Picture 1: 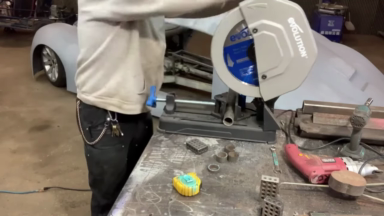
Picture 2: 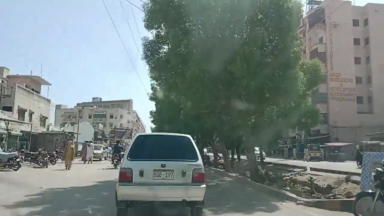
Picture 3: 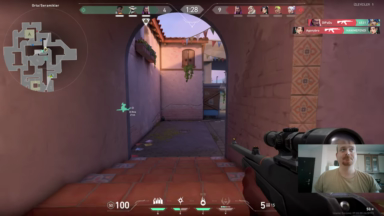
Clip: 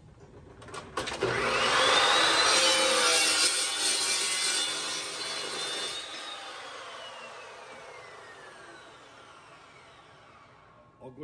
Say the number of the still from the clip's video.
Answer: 1